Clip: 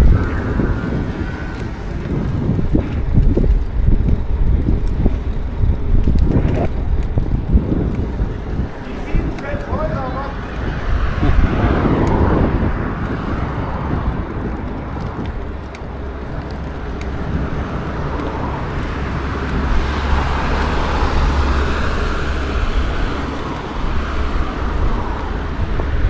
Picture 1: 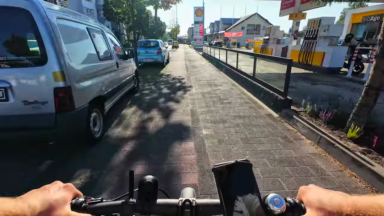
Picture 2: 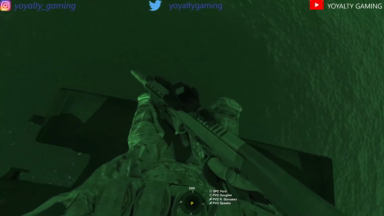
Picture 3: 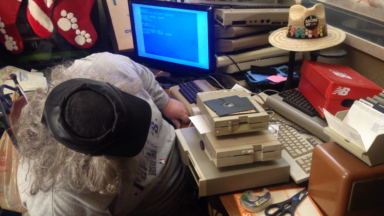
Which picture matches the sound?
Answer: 1